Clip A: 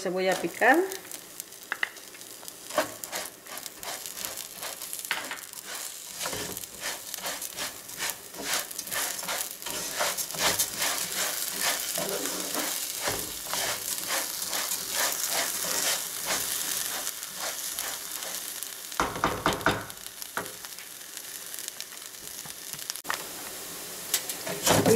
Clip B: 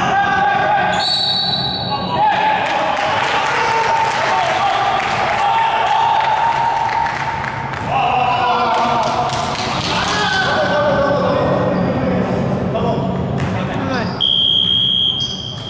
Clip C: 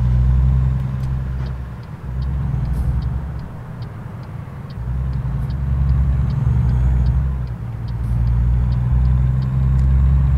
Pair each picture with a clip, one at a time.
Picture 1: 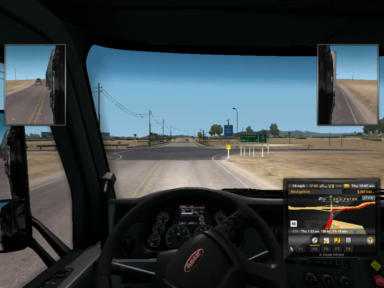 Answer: C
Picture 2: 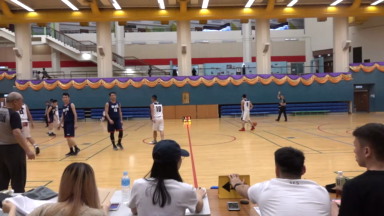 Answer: B